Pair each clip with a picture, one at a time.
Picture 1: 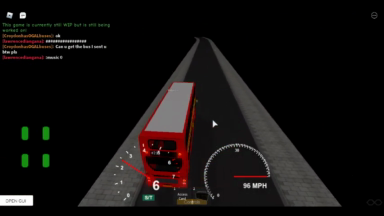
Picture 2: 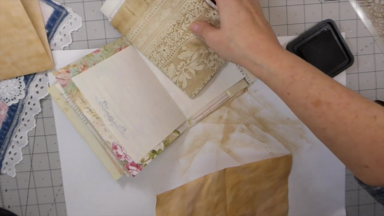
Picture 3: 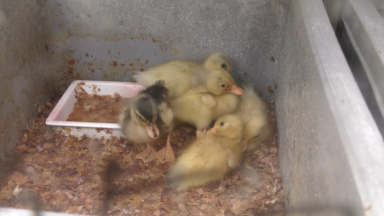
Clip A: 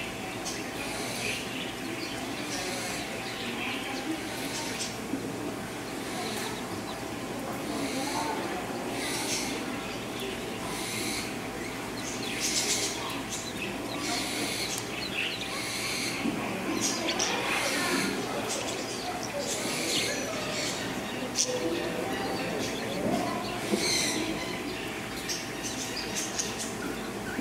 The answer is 3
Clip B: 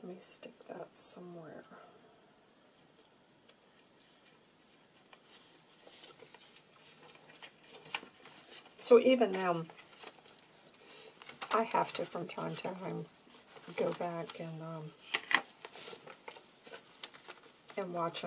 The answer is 2